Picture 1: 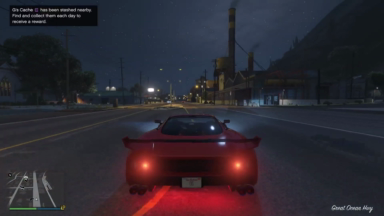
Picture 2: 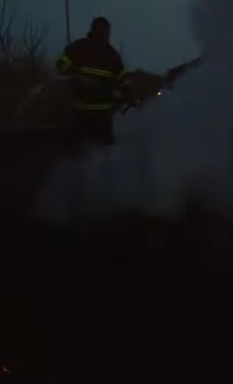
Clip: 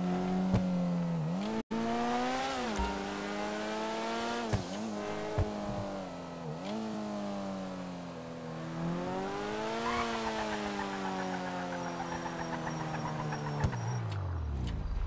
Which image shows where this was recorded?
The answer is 1